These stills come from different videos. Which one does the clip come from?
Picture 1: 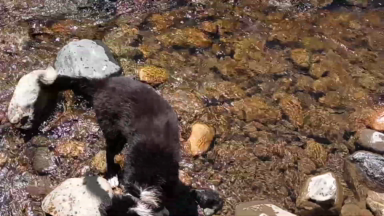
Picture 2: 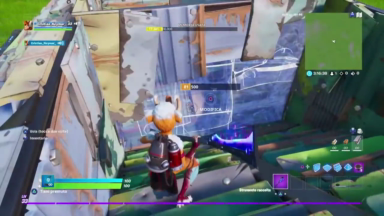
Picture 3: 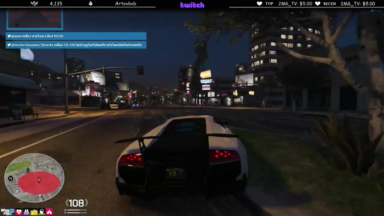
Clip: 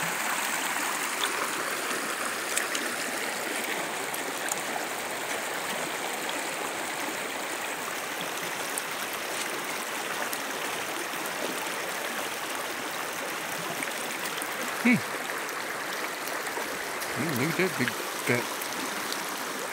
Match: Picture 1